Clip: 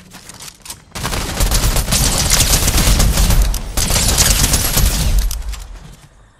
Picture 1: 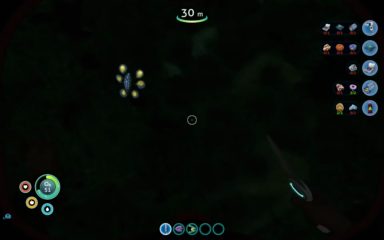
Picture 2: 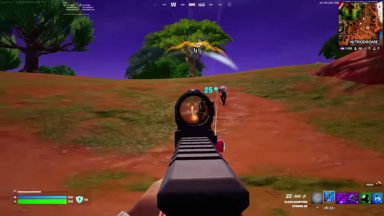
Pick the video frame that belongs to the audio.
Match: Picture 2